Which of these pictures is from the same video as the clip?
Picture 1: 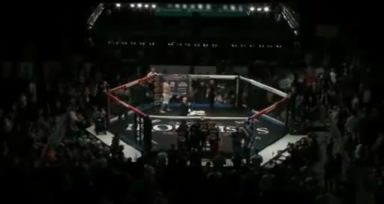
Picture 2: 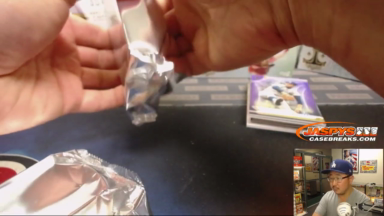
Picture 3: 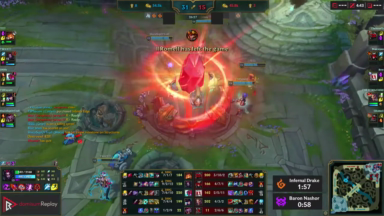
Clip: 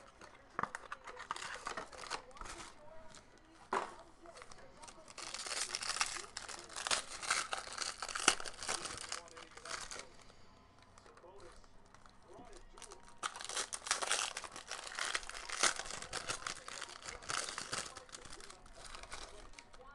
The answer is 2